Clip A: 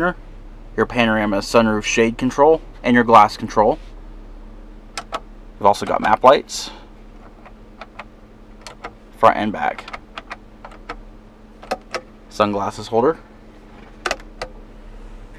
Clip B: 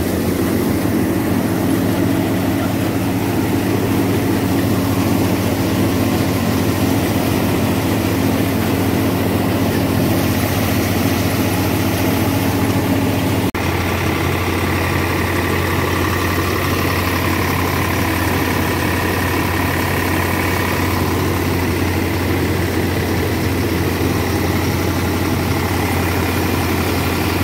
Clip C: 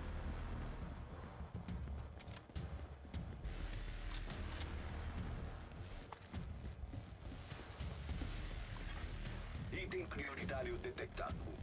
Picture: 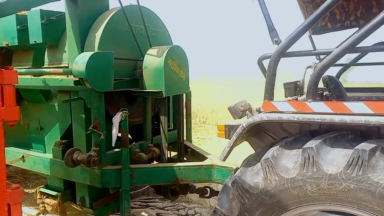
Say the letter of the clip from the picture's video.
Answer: B